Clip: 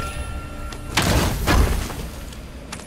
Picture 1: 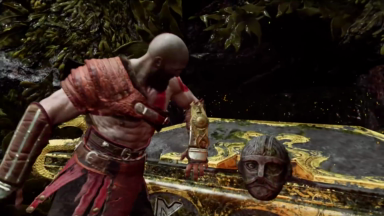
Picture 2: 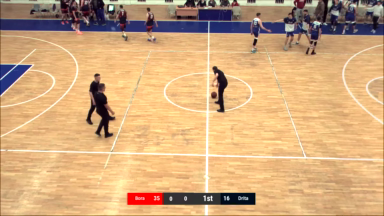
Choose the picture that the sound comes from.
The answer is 1